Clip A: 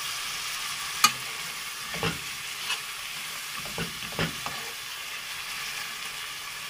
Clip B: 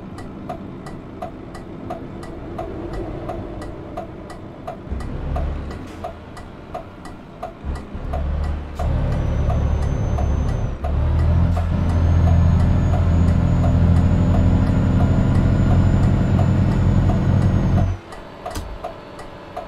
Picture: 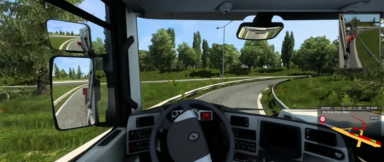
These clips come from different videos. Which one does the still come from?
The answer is B